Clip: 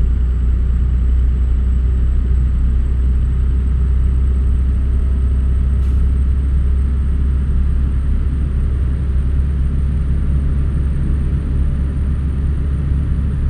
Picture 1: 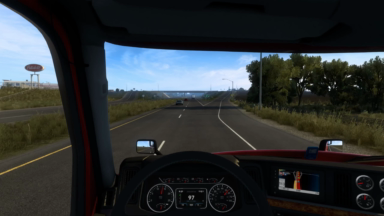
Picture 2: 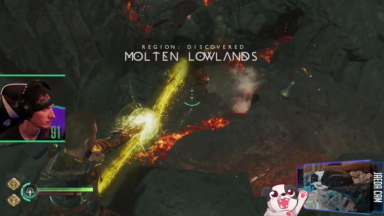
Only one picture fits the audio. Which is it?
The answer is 1